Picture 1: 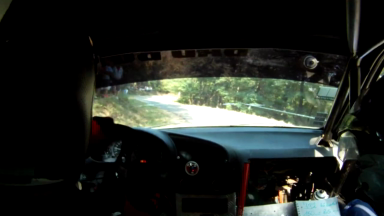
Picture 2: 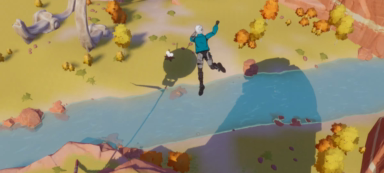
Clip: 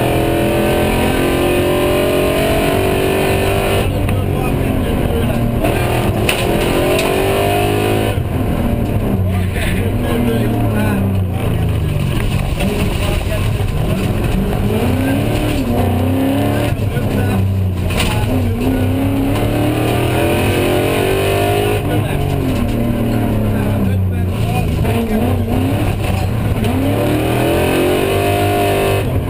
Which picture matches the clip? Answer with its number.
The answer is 1